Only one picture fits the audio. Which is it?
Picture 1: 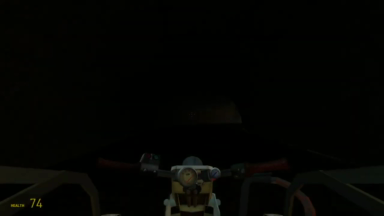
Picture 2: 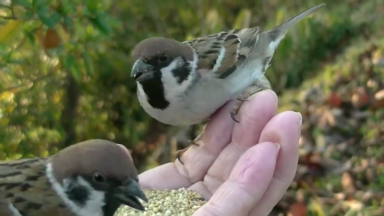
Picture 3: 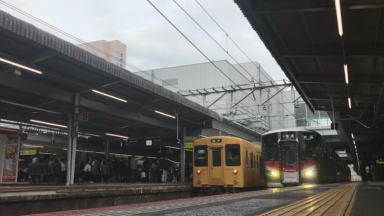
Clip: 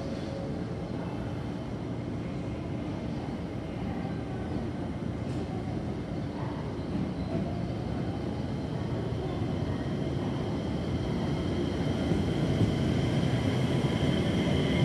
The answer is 3